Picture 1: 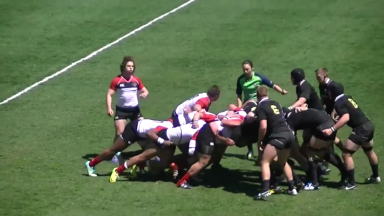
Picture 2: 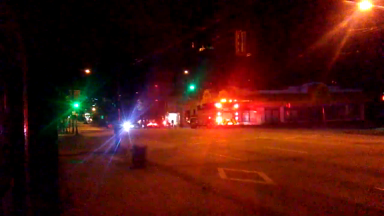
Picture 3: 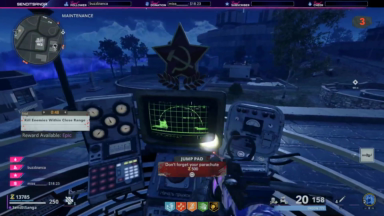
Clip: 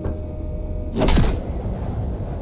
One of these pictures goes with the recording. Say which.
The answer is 3